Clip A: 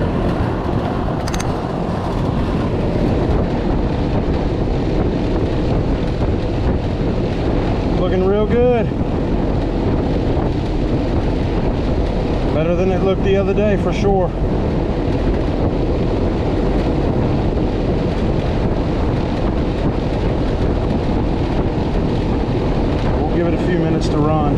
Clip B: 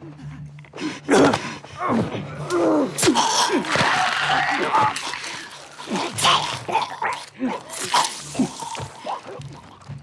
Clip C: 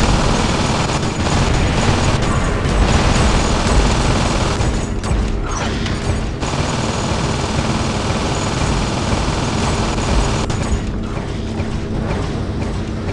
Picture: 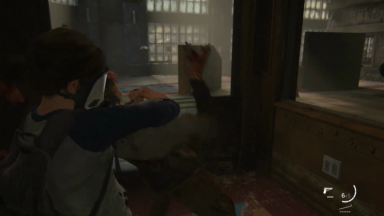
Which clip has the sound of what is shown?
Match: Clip B